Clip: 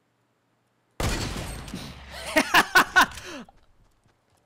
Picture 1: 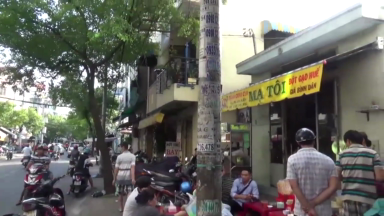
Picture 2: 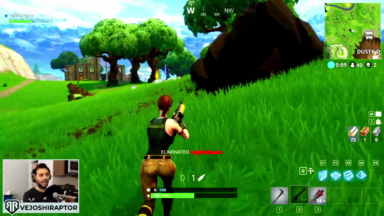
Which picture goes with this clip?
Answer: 2